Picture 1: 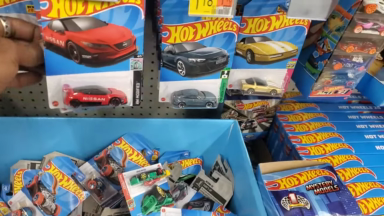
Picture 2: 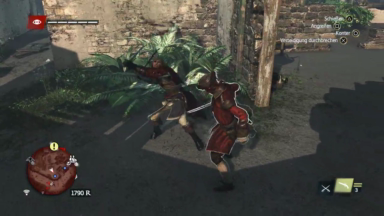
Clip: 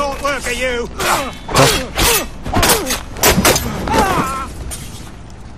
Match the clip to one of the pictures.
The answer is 2